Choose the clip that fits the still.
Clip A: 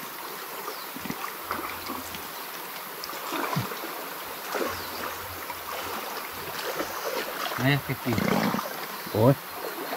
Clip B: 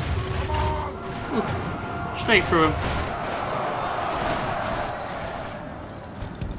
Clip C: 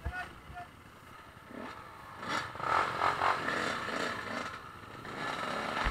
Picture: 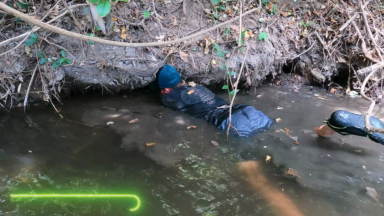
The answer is A